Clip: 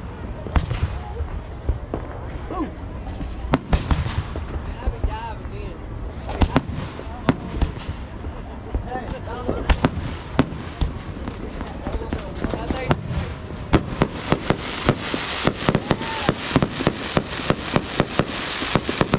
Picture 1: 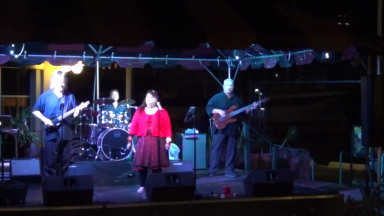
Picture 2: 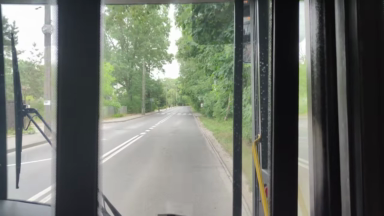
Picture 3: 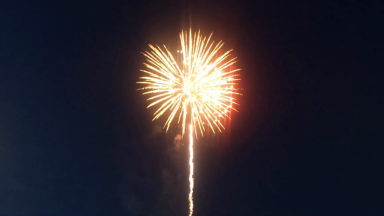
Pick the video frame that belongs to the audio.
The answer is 3